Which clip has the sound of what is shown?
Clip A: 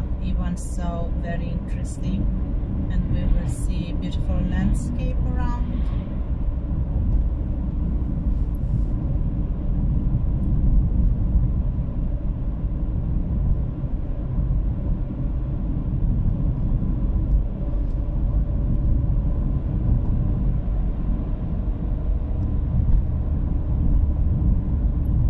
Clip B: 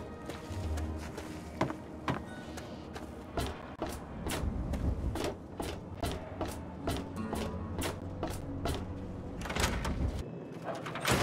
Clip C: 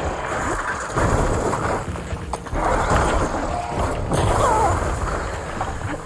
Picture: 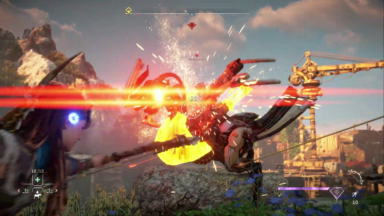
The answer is C